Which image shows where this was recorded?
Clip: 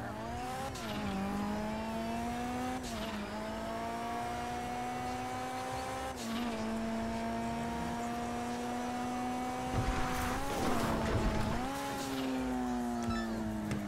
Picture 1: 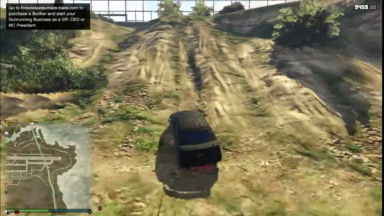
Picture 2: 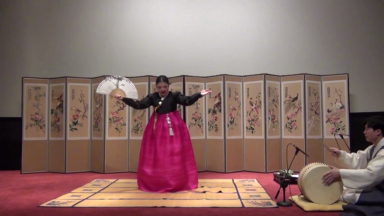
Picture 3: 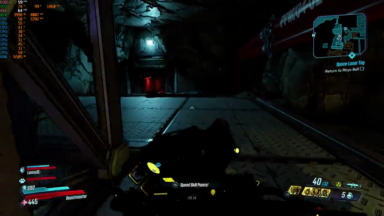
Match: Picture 1